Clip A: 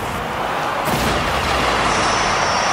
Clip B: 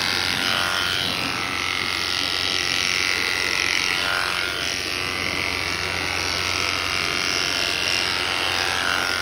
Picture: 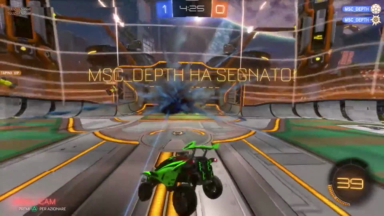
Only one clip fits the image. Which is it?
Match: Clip A